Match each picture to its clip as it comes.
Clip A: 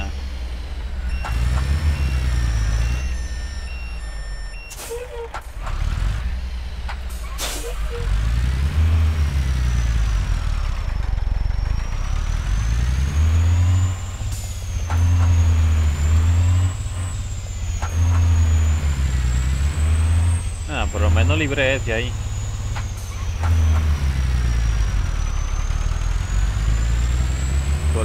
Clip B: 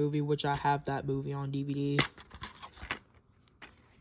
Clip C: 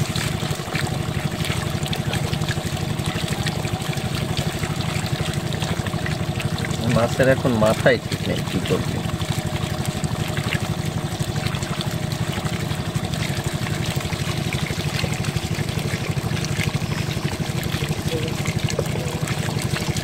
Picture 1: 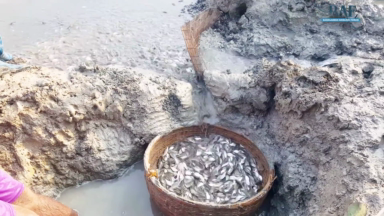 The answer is C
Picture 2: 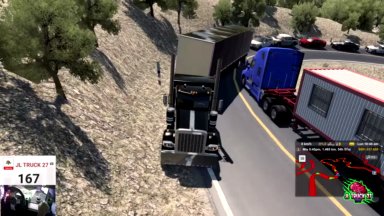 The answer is A